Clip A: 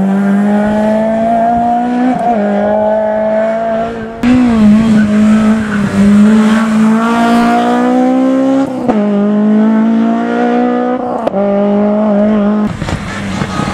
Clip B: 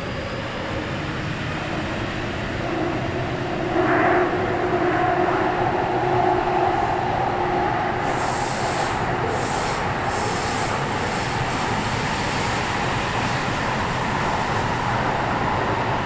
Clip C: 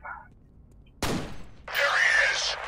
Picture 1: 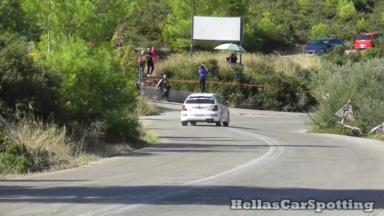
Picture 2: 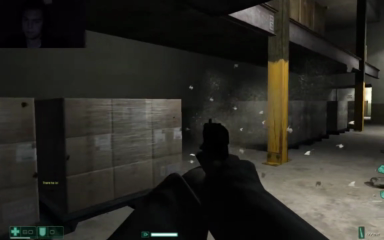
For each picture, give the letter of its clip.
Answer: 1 A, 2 C